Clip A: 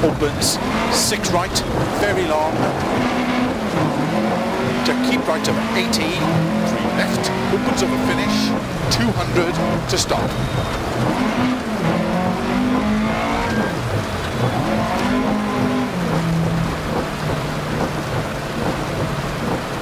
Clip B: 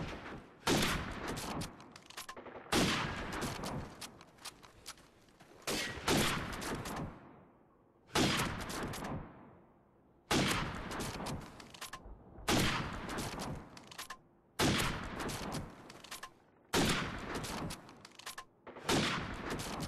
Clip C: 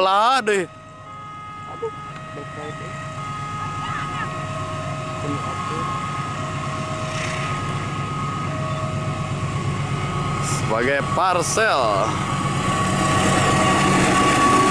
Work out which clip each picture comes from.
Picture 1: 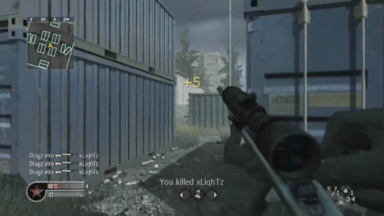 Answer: B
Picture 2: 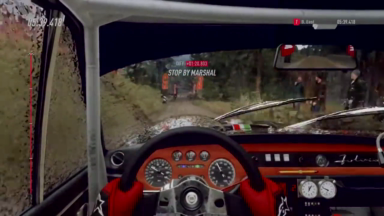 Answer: A